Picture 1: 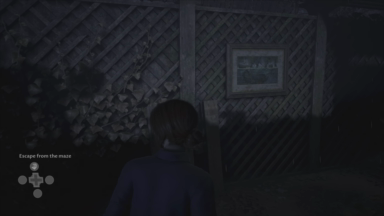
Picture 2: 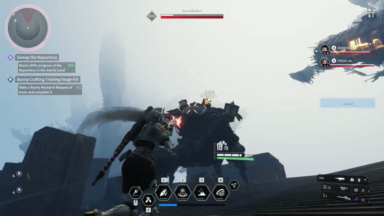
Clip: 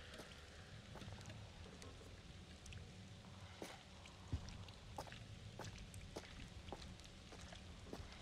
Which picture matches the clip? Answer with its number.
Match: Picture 1